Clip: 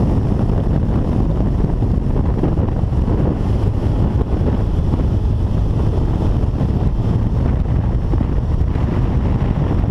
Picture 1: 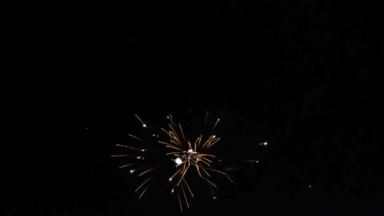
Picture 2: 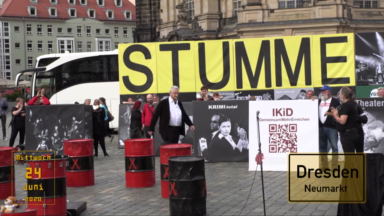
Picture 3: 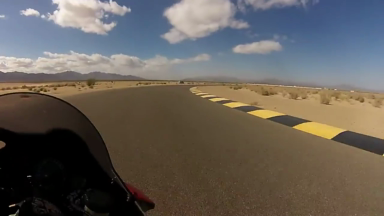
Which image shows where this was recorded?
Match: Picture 3